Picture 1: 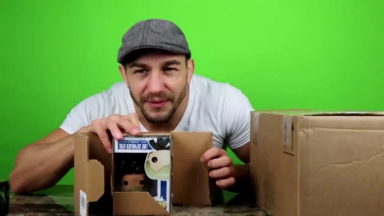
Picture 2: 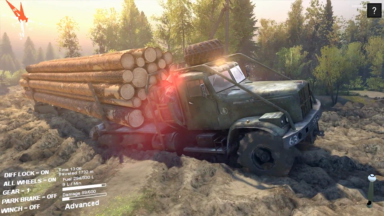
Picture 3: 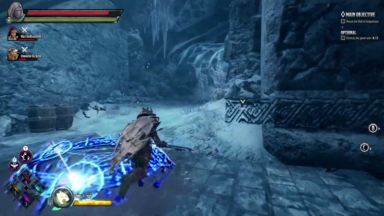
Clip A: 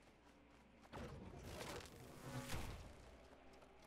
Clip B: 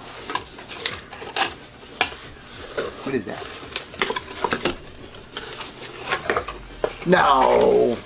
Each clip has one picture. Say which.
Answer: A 3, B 1